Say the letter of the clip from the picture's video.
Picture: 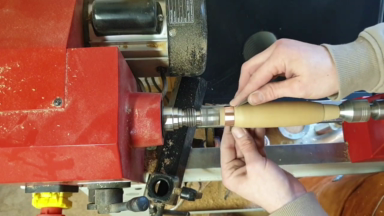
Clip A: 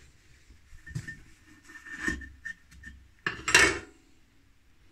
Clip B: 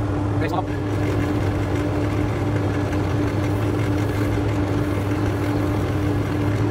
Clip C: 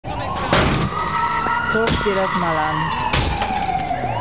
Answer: B